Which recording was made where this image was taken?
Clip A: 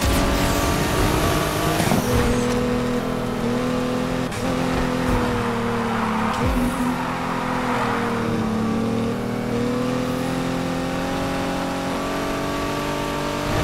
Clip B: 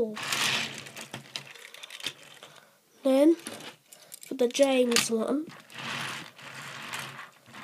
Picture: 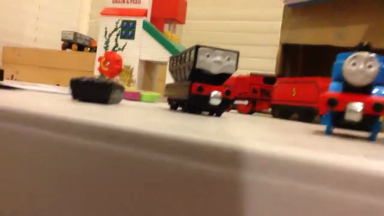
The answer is B